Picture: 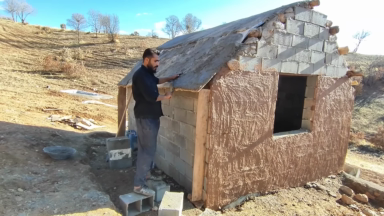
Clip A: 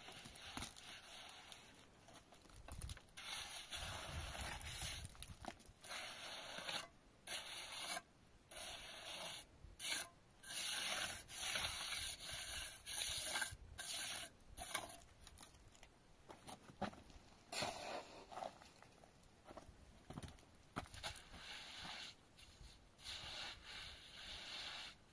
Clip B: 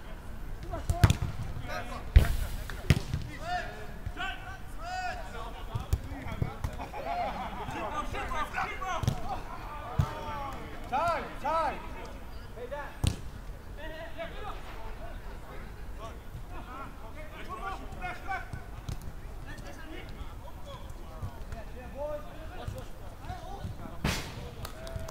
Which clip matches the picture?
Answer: A